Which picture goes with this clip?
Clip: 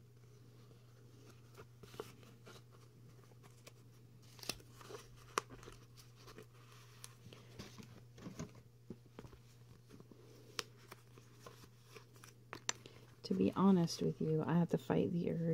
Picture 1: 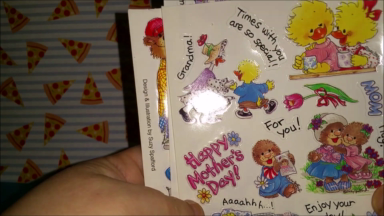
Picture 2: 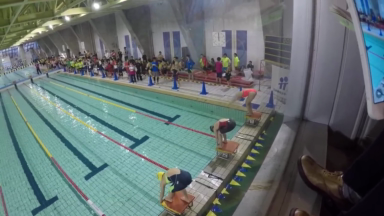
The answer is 1